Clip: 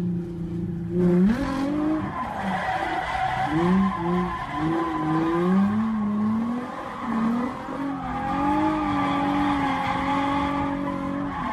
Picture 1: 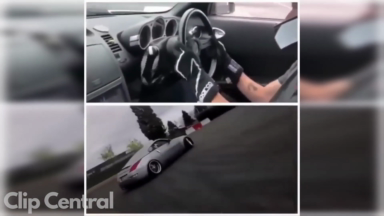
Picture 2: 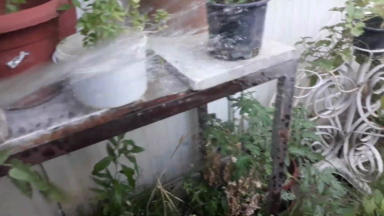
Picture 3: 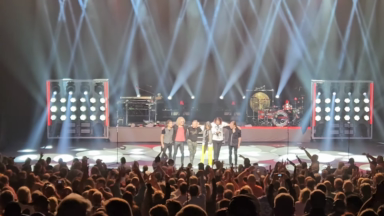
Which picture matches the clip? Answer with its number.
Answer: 1